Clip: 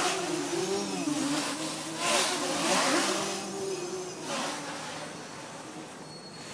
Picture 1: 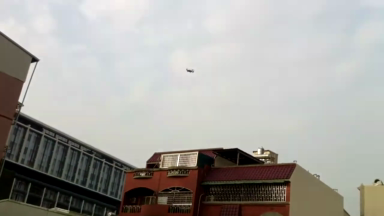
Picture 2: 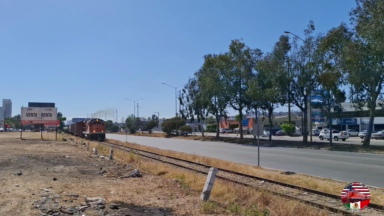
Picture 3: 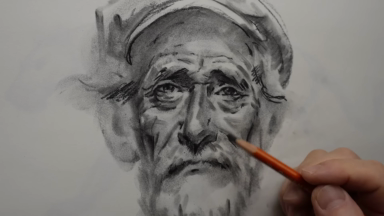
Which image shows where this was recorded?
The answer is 1